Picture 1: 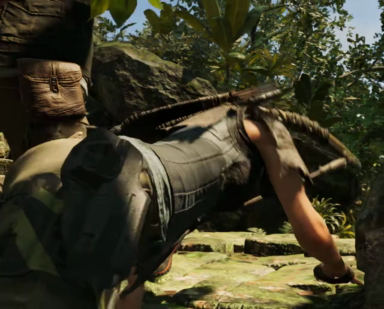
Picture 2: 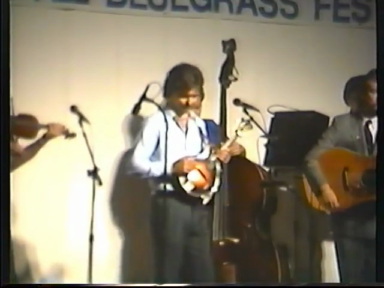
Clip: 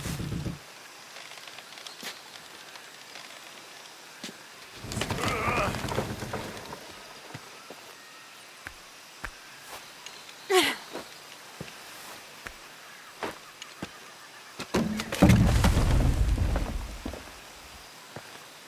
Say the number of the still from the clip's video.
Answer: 1